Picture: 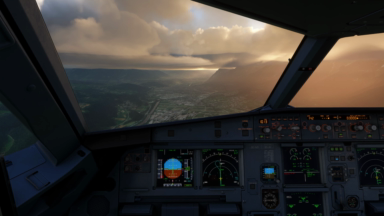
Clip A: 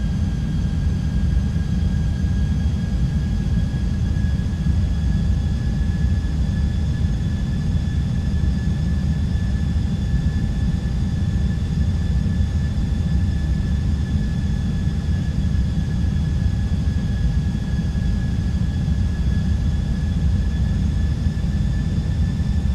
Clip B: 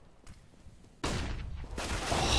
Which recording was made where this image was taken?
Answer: A